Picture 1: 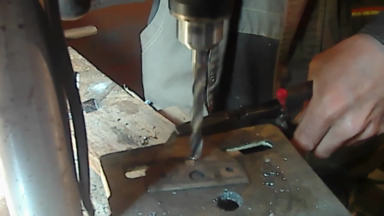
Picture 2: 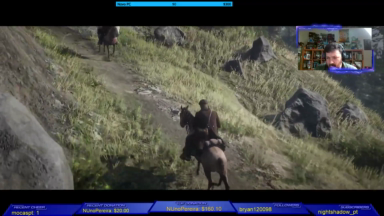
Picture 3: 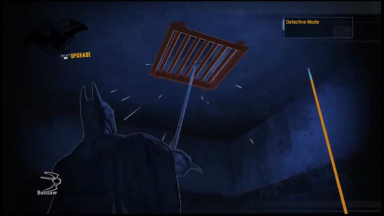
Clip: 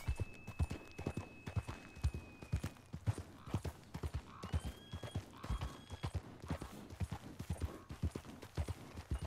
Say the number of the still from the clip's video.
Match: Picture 2